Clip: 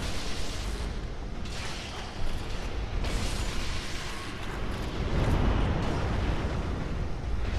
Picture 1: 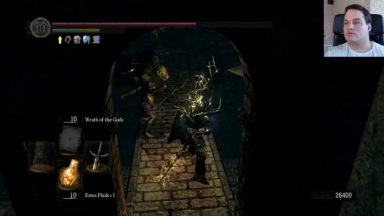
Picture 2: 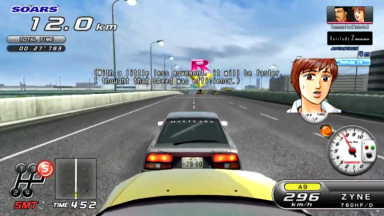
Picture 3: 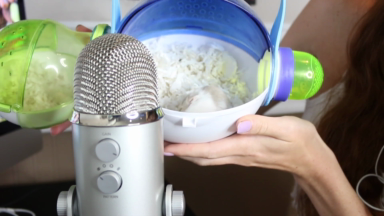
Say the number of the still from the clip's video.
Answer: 1